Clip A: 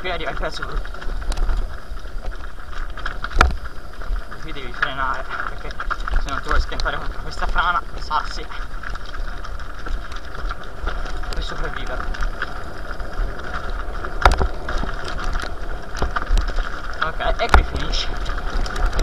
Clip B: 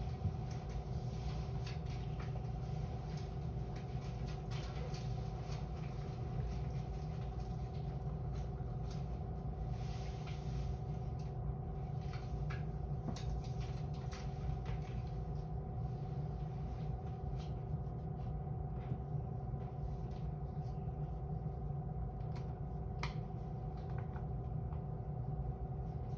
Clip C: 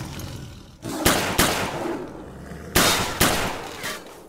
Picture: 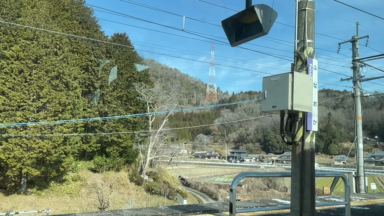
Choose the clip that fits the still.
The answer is B